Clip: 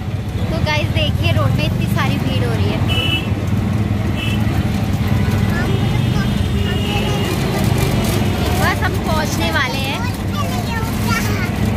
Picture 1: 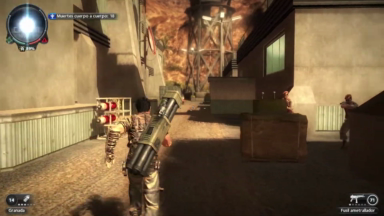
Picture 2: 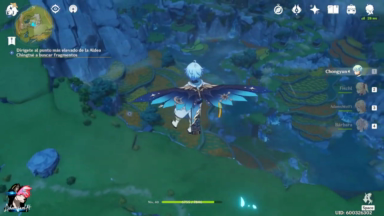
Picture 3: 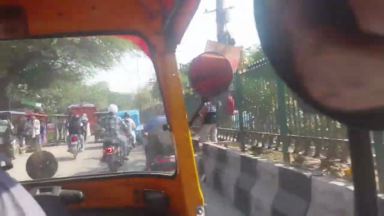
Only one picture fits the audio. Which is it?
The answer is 3